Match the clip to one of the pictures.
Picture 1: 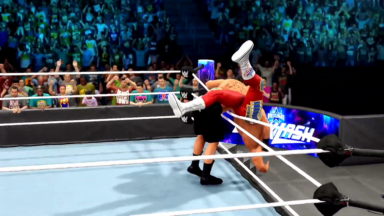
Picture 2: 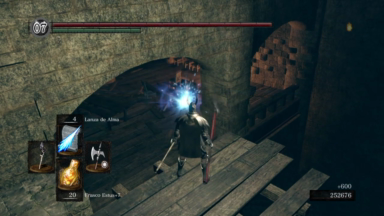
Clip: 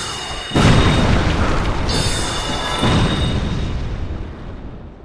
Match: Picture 2